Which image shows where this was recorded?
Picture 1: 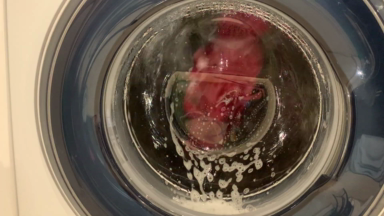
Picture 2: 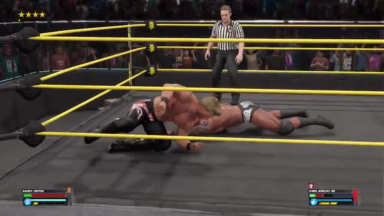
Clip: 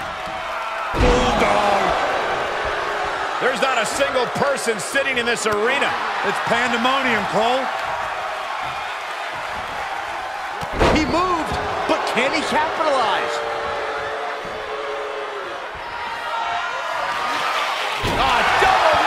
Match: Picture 2